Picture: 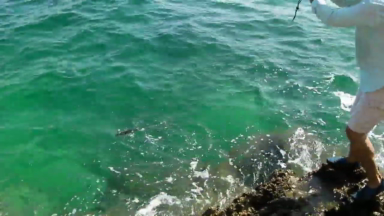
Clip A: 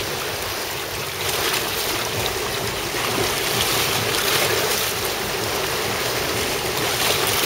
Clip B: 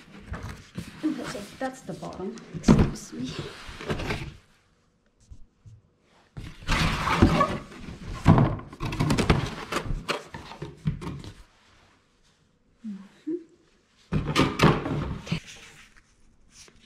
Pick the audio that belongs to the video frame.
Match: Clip A